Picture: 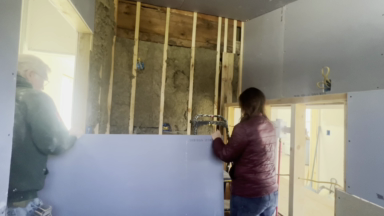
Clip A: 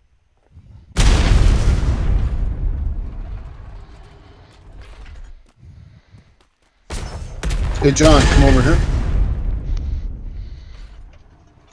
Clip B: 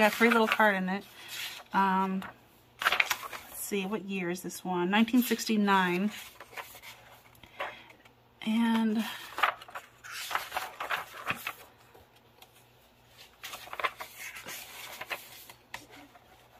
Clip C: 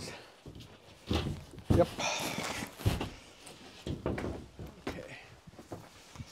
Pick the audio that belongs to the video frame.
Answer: C